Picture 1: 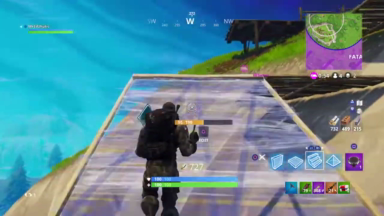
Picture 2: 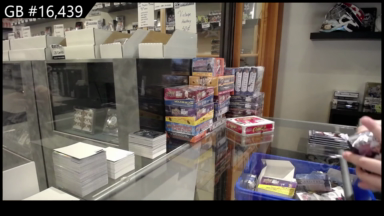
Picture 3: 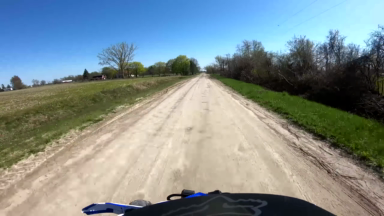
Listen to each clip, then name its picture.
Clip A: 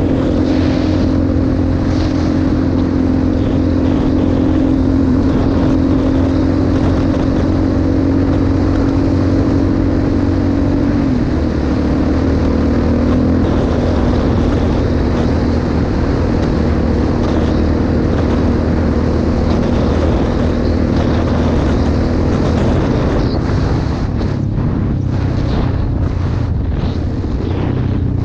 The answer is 3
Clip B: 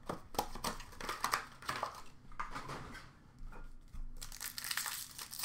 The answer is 2